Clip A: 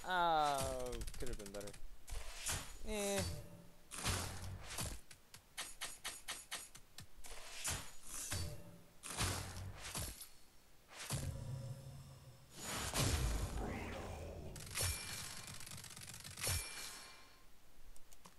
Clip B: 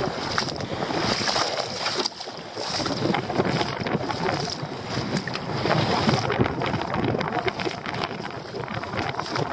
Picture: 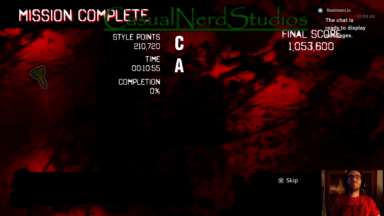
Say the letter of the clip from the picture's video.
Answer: A